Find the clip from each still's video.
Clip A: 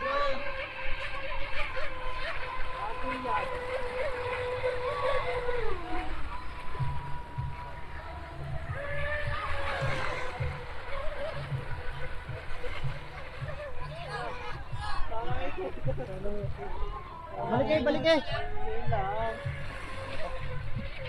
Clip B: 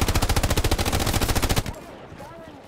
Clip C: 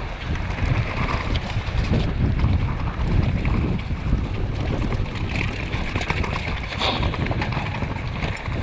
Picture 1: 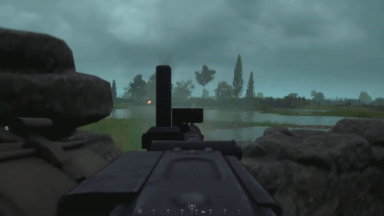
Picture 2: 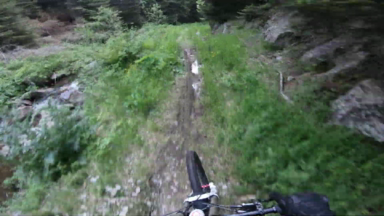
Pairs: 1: B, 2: C